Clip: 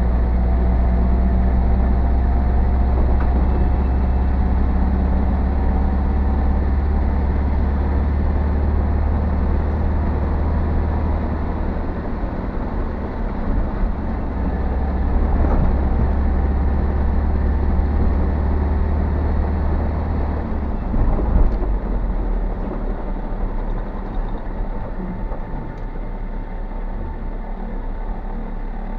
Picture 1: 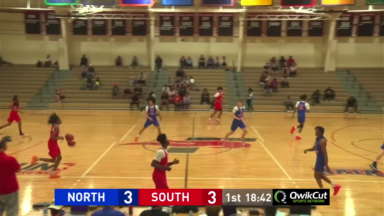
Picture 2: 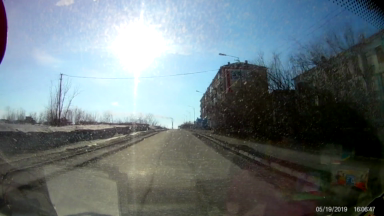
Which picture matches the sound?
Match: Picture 2